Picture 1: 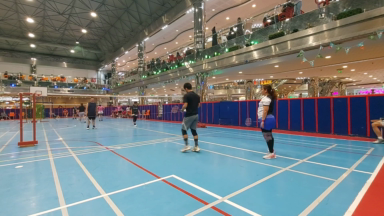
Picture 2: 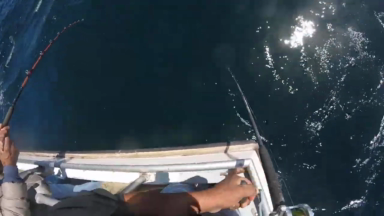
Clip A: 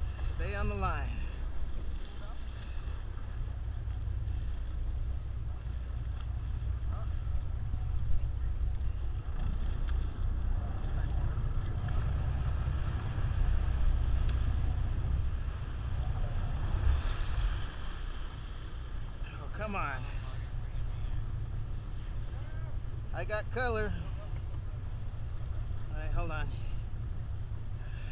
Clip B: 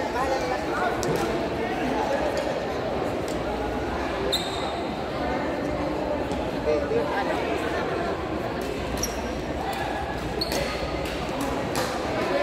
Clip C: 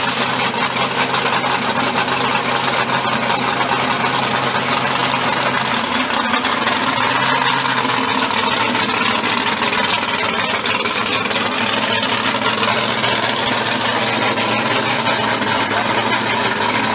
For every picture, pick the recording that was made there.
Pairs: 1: B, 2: A